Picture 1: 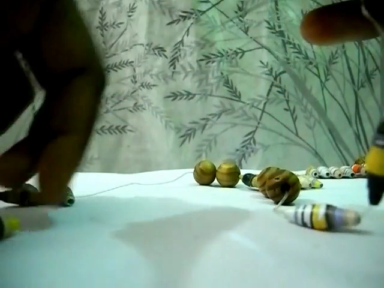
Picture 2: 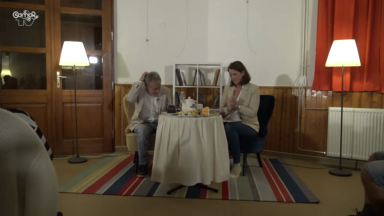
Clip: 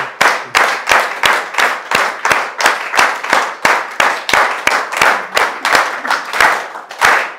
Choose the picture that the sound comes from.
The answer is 2